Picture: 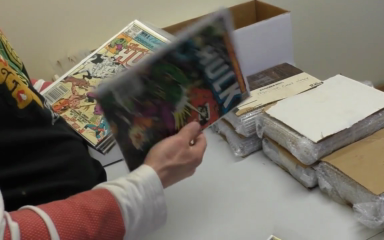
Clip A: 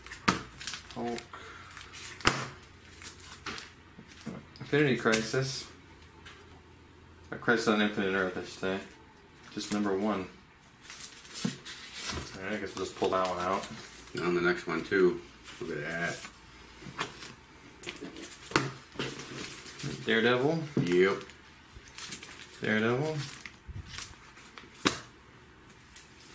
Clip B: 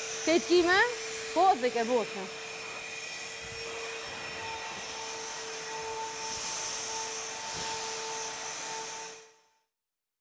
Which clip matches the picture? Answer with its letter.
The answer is A